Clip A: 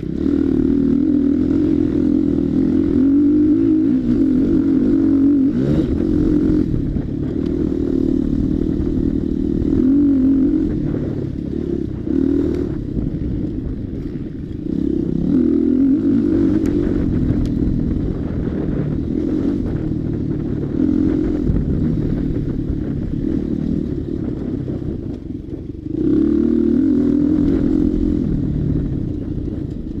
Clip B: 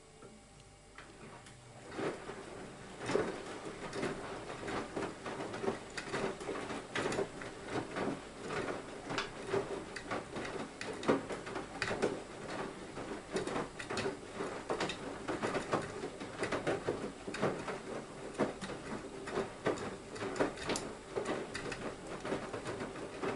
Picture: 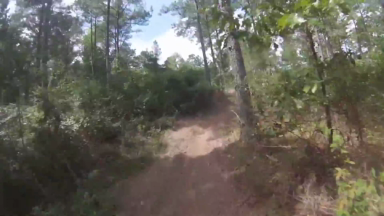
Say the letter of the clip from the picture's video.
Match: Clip A